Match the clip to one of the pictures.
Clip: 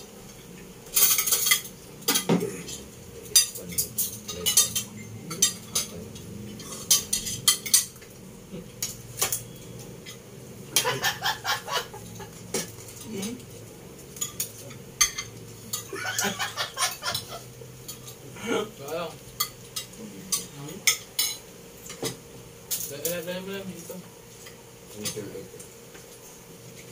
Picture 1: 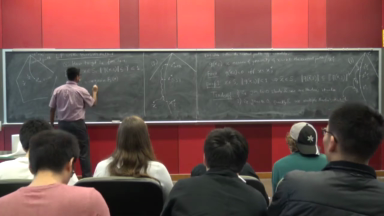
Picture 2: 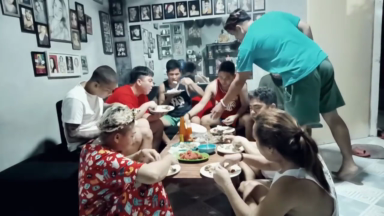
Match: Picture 2